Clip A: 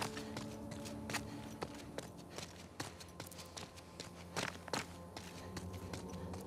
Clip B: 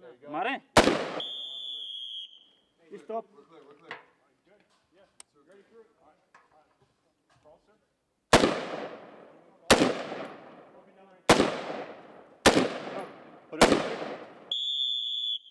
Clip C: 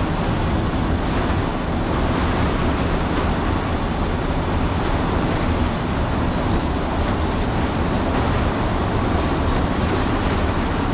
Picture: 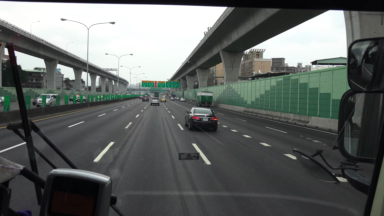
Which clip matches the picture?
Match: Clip C